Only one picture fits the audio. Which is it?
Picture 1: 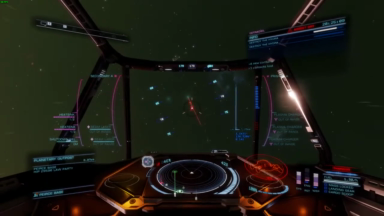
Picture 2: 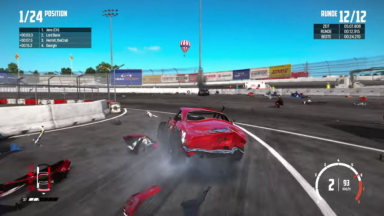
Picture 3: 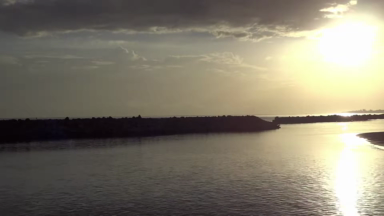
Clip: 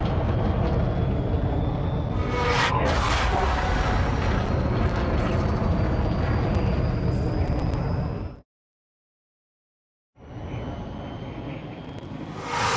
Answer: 1